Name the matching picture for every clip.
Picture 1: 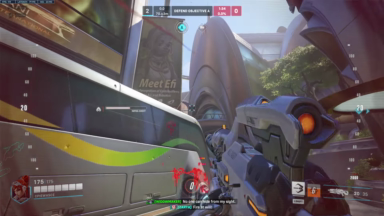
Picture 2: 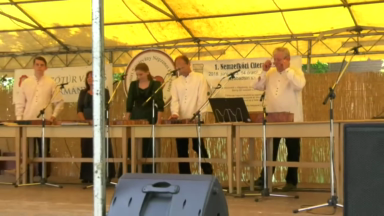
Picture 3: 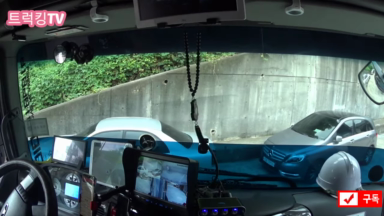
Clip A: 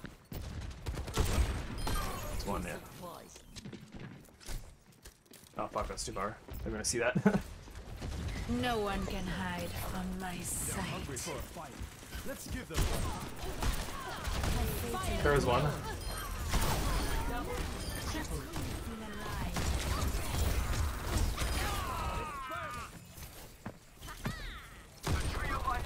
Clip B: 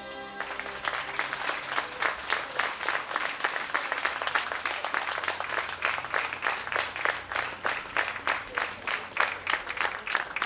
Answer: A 1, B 2